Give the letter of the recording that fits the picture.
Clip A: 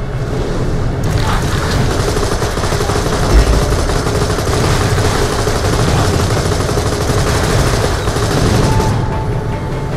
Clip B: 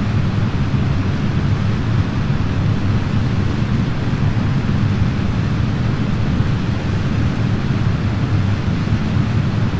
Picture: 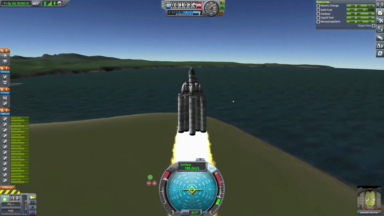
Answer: B